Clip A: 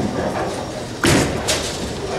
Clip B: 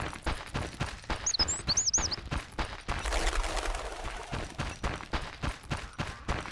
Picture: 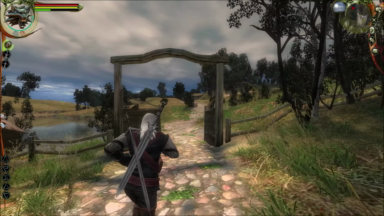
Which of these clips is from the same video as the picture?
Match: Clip B